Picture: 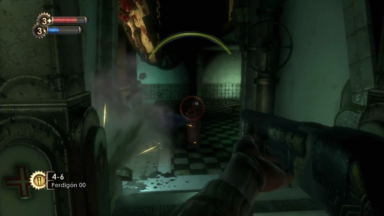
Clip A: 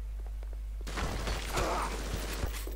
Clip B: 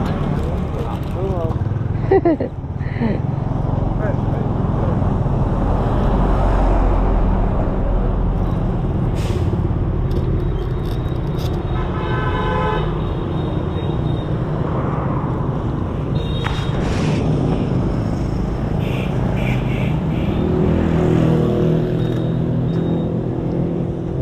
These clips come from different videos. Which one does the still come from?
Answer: A